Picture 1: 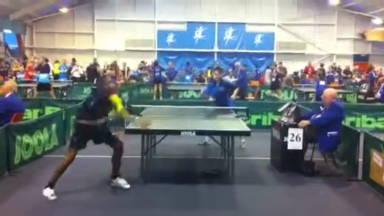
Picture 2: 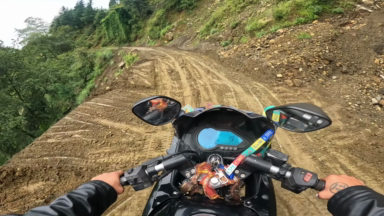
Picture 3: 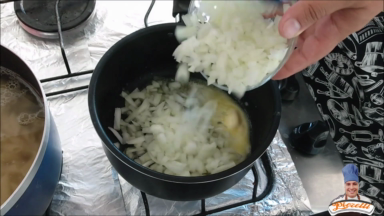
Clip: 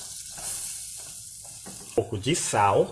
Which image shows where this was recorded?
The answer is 3